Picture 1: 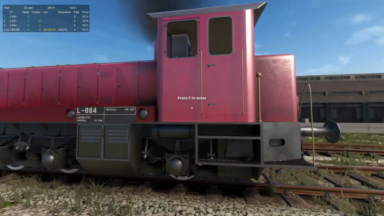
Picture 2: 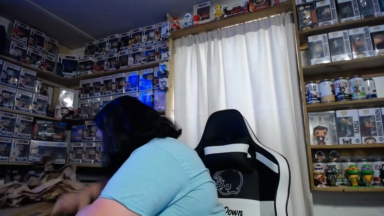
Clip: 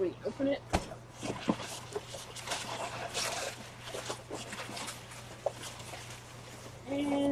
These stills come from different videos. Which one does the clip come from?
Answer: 2